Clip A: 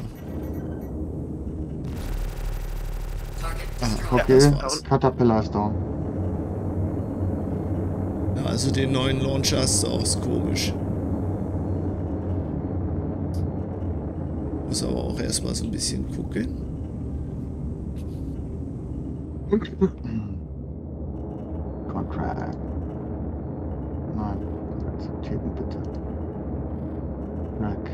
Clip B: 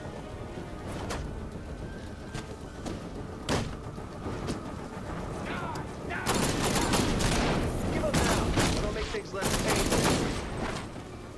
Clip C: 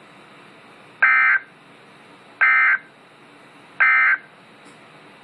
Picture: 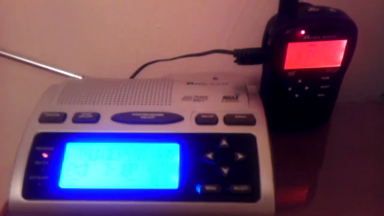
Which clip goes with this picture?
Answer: C